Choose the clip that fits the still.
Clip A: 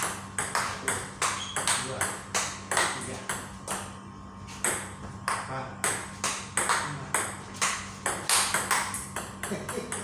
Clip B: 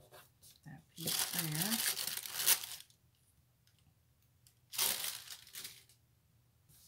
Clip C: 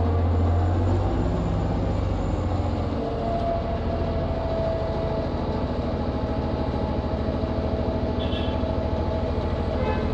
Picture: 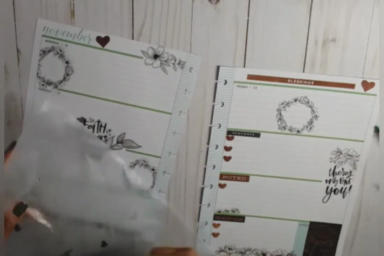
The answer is B